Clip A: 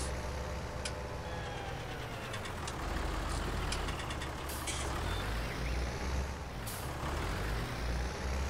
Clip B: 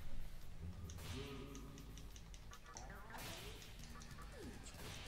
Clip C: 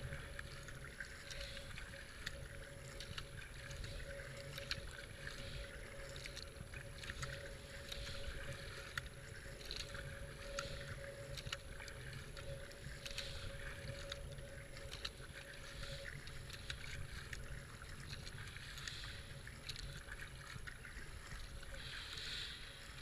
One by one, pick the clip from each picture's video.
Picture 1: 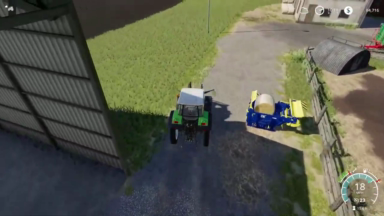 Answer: A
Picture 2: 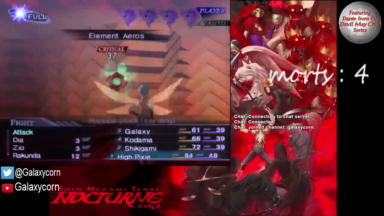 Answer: B